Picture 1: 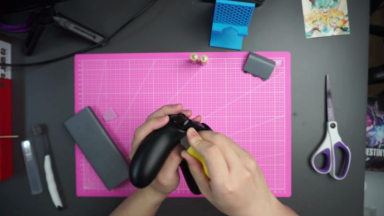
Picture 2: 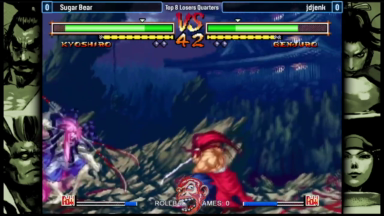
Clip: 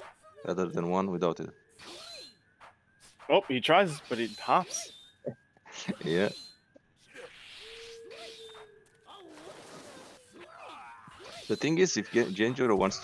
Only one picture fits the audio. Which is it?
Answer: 2